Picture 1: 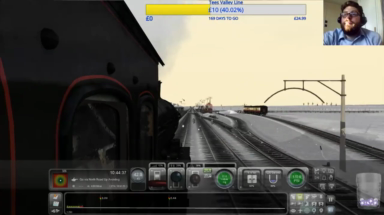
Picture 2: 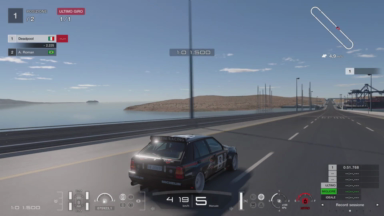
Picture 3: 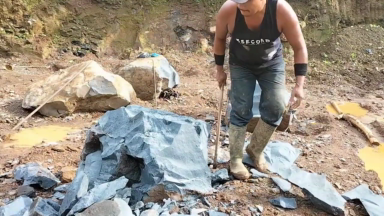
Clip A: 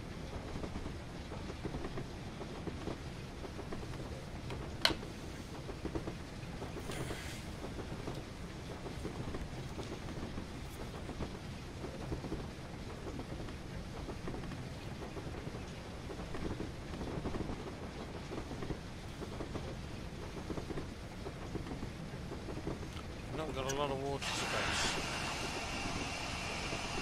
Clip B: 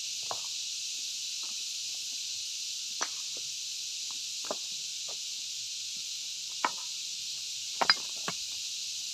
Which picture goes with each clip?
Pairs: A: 1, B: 3